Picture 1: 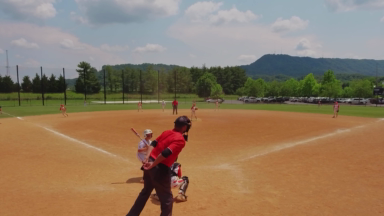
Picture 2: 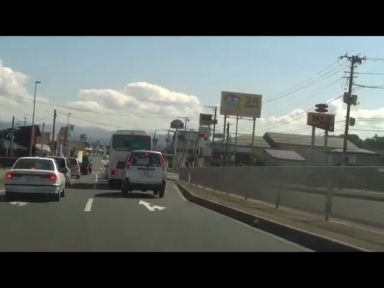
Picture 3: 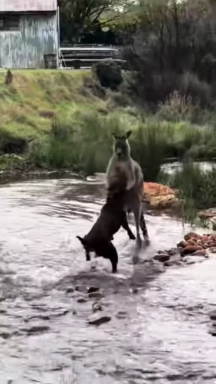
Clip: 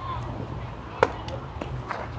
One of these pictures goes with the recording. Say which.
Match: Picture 1